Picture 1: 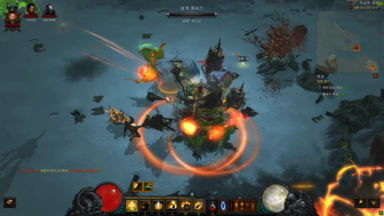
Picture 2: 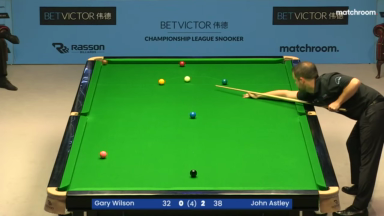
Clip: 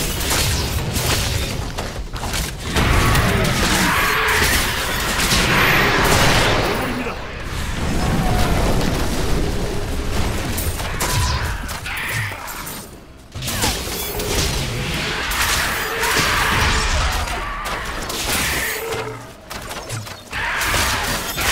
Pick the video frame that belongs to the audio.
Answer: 1